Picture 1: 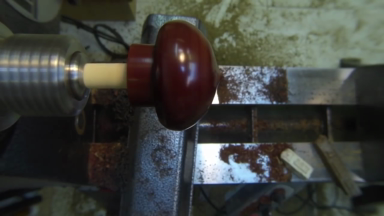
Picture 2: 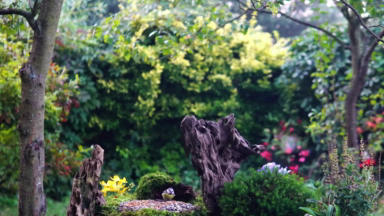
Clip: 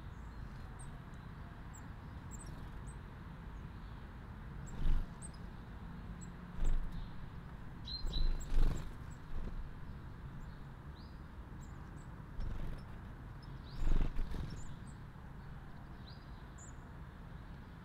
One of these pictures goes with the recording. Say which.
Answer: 2